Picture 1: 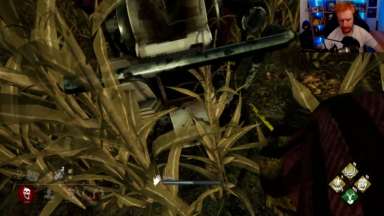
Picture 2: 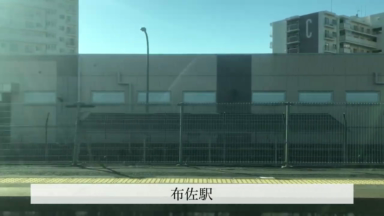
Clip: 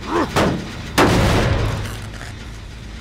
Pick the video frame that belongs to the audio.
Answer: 1